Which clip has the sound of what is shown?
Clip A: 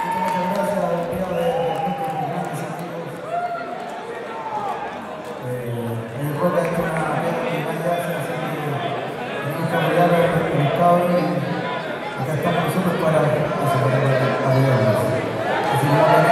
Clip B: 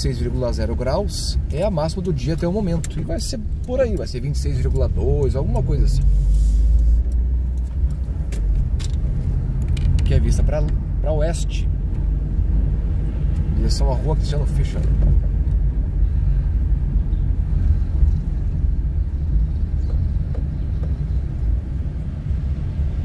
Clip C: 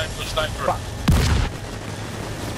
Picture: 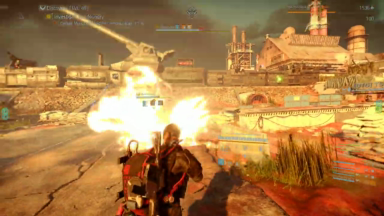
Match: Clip C